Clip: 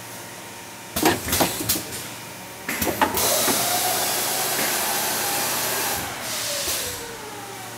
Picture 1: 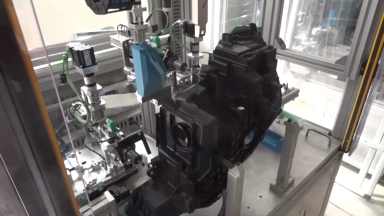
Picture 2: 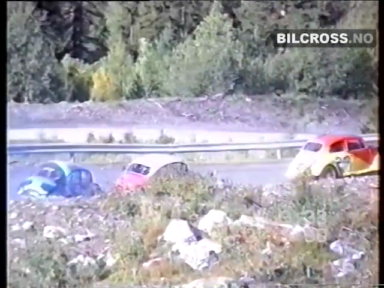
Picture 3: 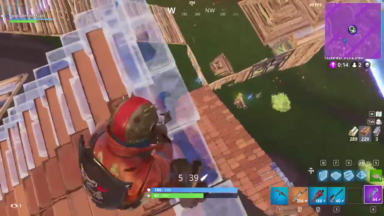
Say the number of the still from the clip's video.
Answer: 1